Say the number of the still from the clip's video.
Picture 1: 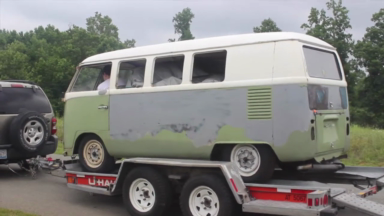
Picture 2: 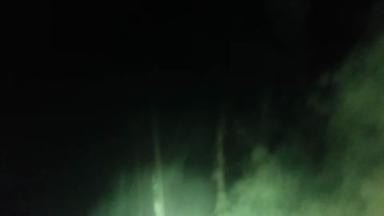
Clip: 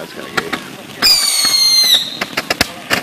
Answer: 2